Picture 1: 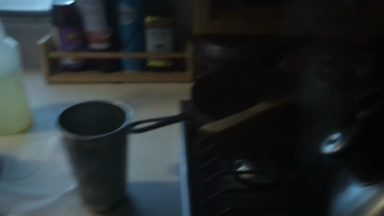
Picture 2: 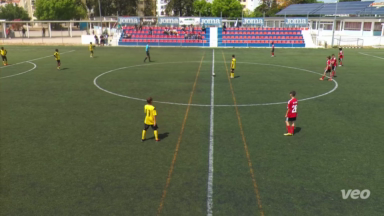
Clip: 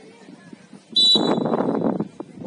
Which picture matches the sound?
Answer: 2